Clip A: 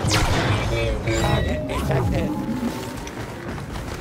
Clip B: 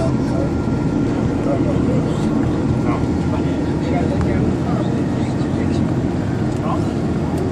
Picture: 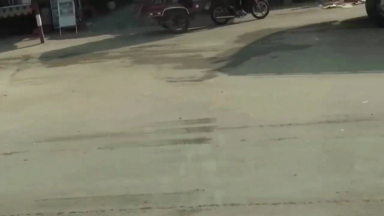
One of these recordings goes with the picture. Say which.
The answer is B